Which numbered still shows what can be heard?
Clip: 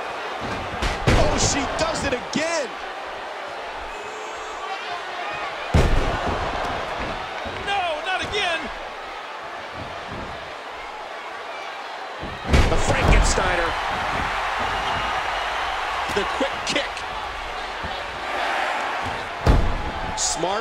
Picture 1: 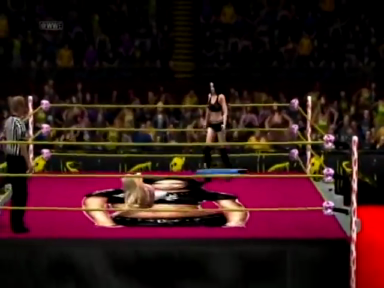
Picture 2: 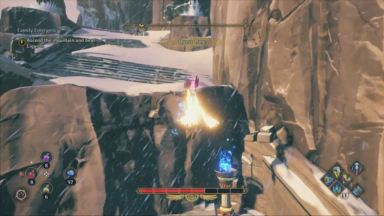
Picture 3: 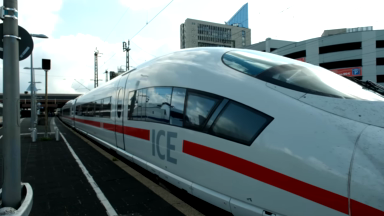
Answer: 1